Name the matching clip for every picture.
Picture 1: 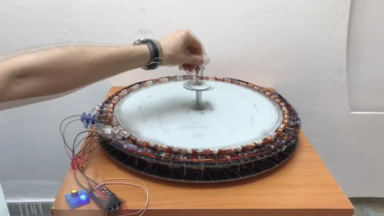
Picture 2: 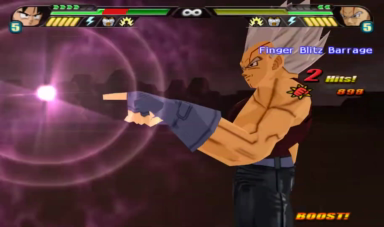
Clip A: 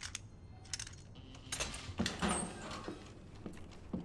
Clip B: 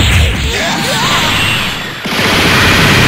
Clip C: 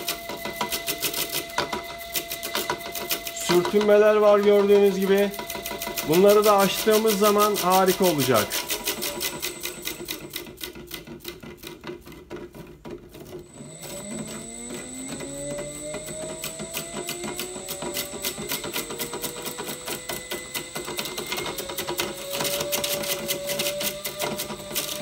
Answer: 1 C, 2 B